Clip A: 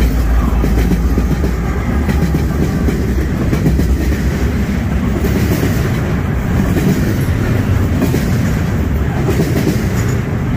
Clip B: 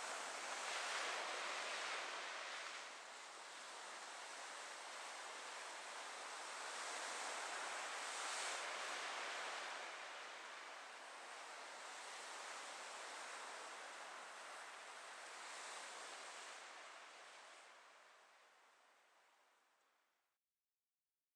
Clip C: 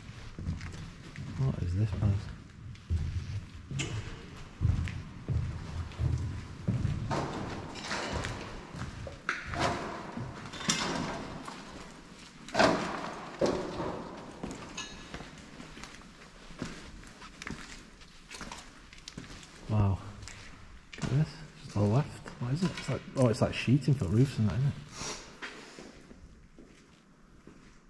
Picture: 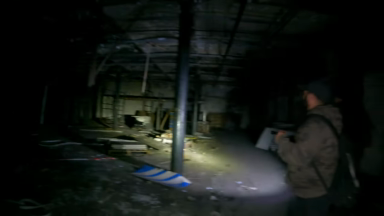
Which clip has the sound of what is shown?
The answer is C